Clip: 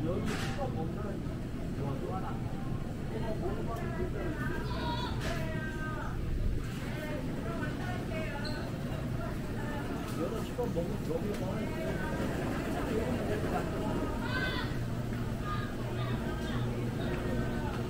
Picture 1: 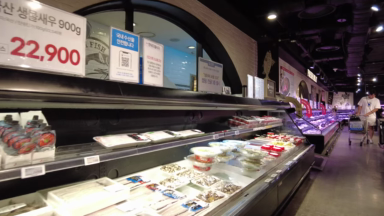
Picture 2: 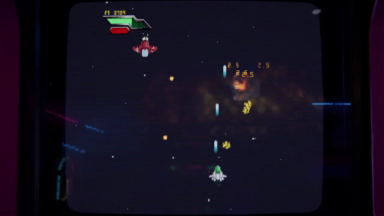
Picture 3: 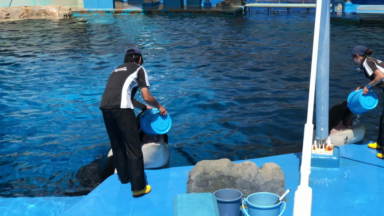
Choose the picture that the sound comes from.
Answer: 1